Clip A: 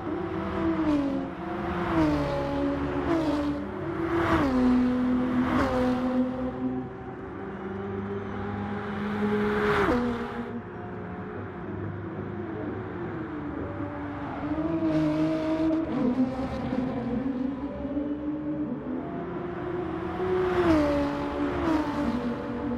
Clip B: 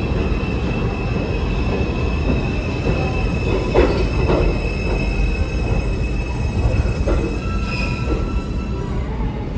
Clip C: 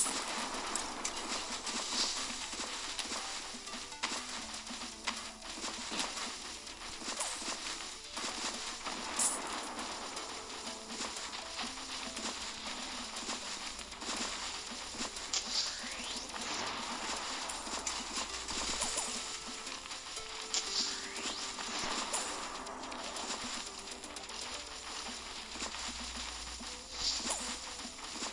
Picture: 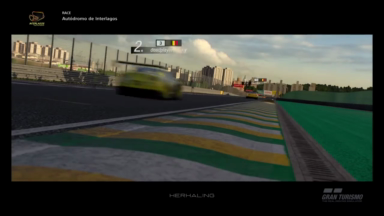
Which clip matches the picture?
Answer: A